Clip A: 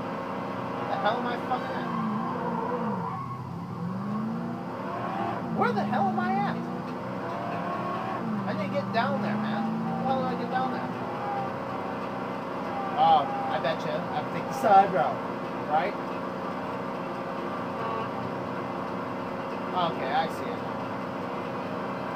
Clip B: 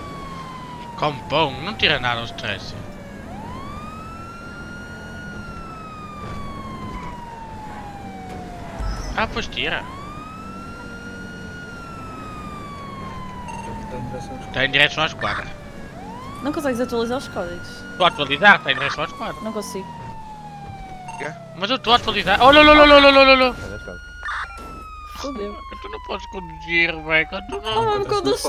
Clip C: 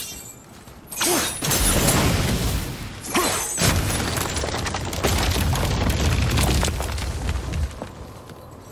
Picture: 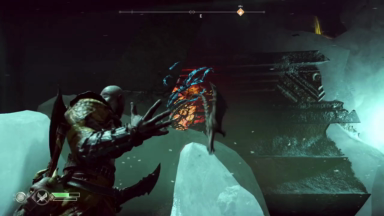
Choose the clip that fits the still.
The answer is C